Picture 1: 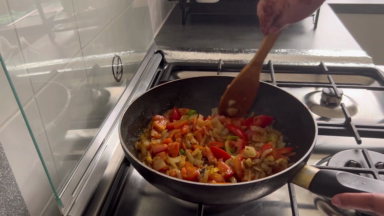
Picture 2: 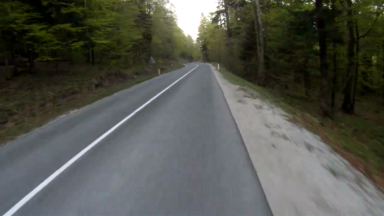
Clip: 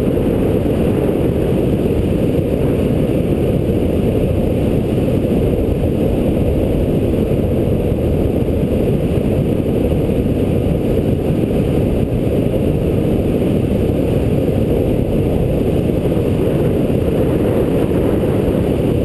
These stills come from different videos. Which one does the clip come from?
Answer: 2